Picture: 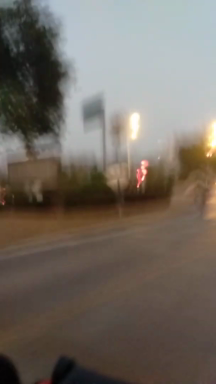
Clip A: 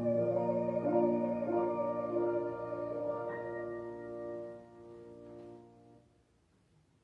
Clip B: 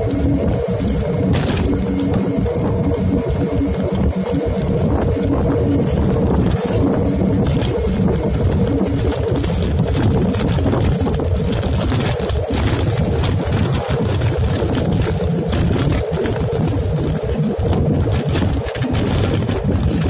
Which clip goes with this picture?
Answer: B